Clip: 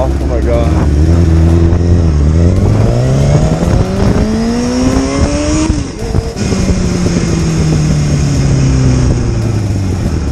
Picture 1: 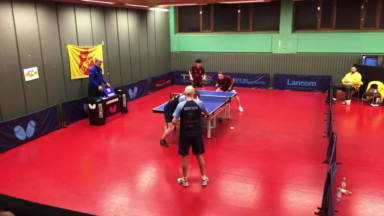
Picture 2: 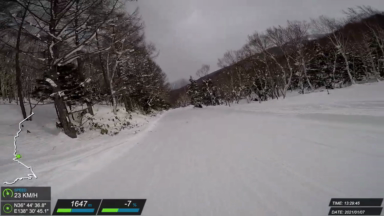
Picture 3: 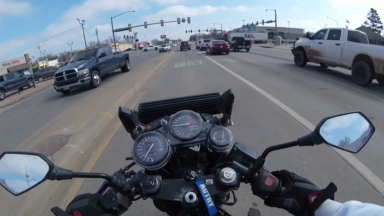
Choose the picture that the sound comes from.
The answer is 3